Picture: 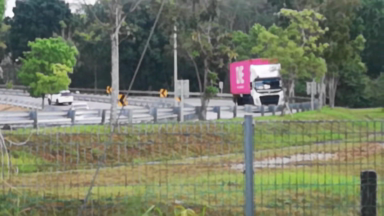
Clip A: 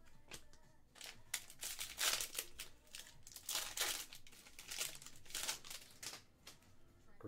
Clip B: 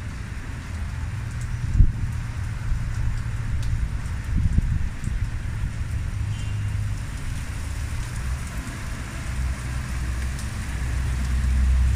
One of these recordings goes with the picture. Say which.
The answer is B